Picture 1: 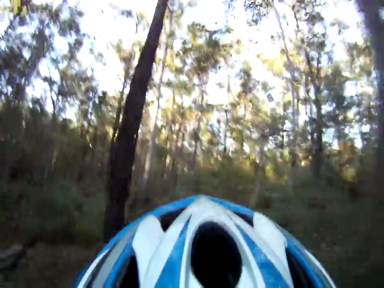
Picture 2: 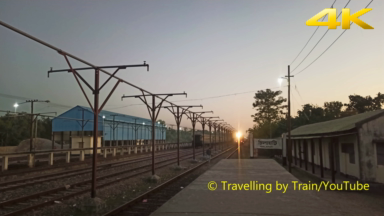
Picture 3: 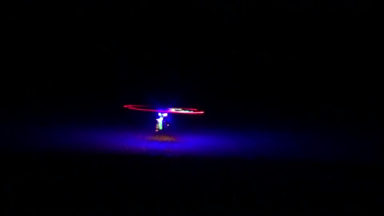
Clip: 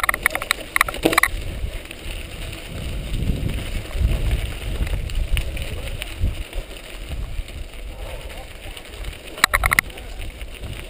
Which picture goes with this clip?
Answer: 1